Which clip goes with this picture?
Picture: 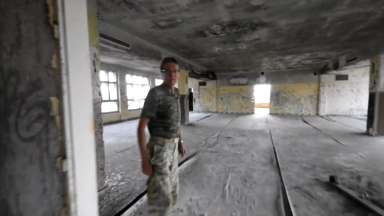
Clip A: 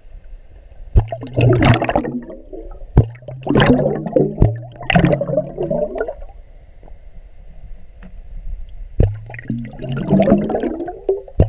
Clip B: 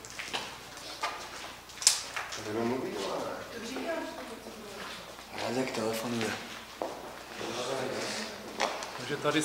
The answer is B